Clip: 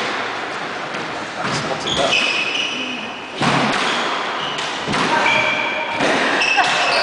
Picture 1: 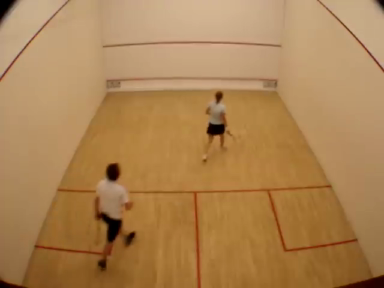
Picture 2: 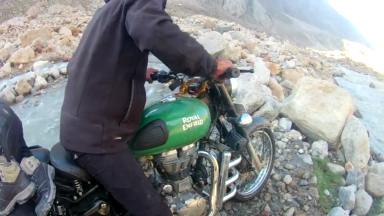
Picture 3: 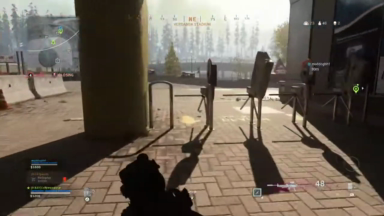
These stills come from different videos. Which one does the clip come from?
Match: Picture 1